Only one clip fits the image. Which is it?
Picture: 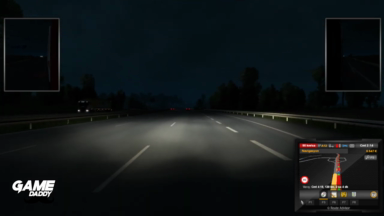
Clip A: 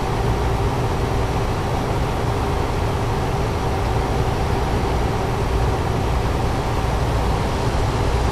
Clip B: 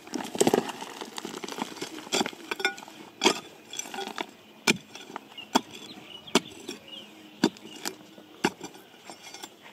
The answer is A